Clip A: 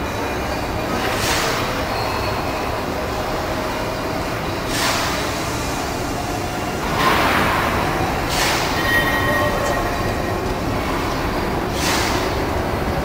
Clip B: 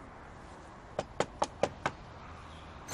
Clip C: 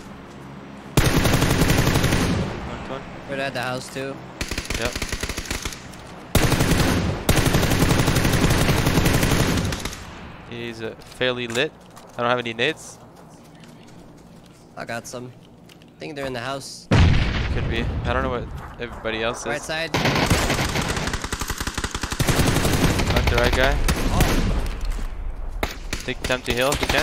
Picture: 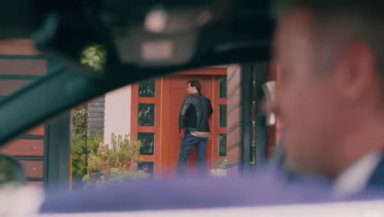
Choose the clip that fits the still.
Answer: B